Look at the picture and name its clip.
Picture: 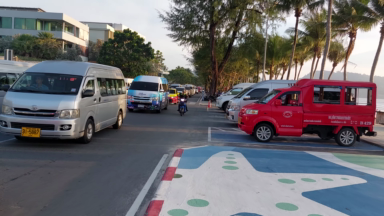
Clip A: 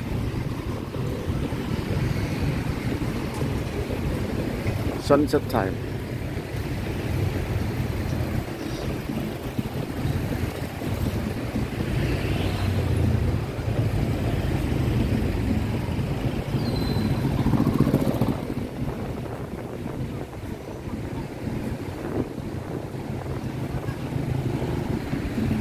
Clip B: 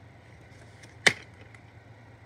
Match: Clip A